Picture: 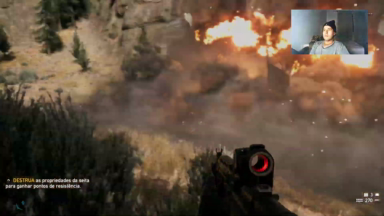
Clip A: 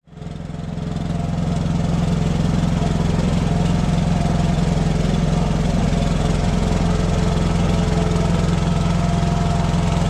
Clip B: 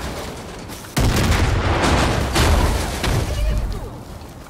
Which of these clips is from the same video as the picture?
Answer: B